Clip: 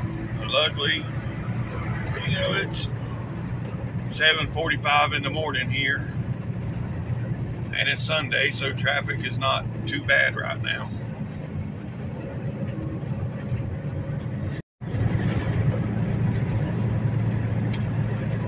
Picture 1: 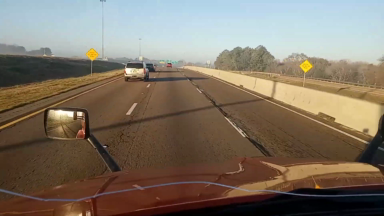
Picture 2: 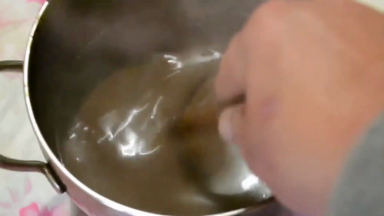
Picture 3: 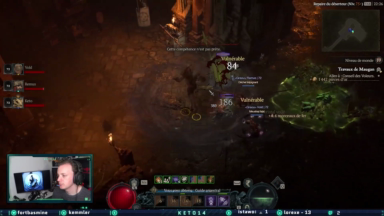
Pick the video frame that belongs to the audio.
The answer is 1